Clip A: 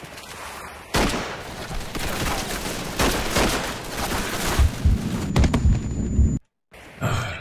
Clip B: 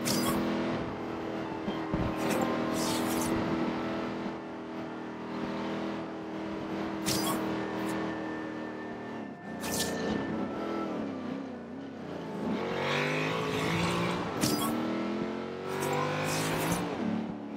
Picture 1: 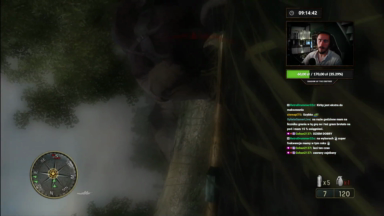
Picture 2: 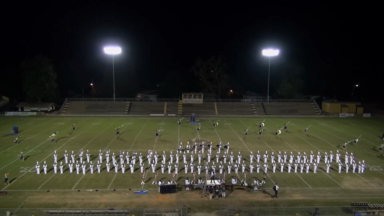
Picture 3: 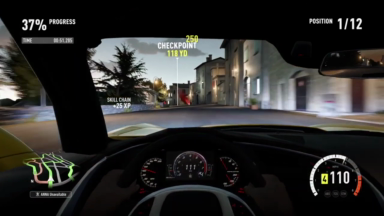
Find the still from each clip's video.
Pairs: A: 1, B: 3